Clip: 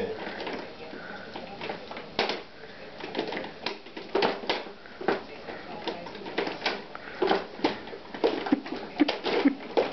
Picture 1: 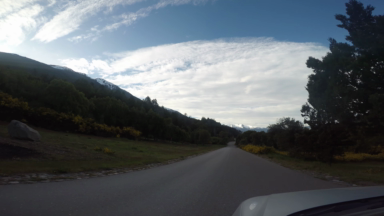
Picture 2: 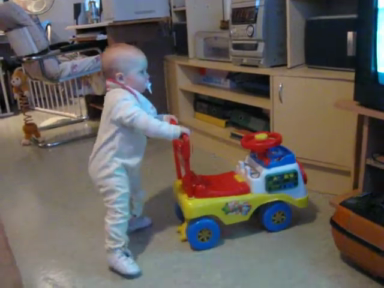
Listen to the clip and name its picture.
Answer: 2